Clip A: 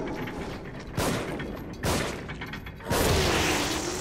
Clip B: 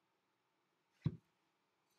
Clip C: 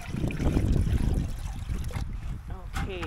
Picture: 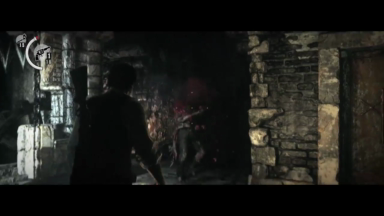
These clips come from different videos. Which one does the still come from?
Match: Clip A